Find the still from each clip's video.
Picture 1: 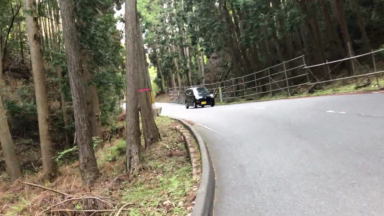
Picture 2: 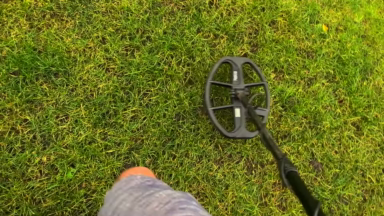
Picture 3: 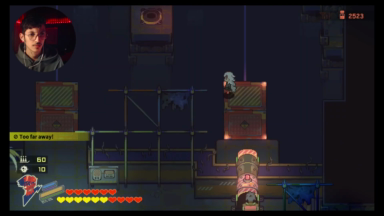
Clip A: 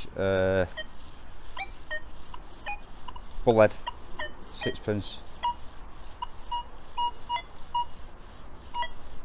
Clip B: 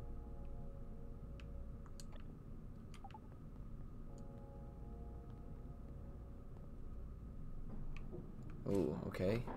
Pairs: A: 2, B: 3